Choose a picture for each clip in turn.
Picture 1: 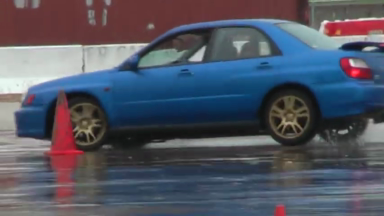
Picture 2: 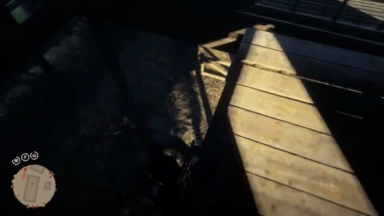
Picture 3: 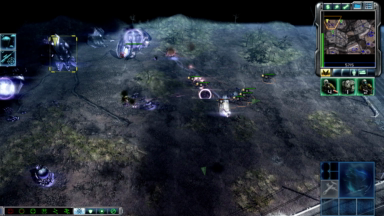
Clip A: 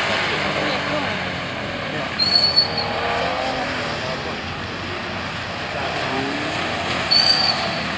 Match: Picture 1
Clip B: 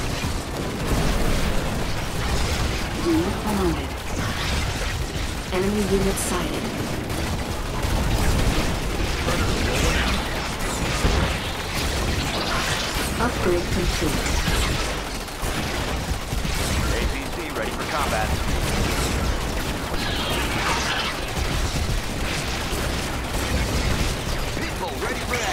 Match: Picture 3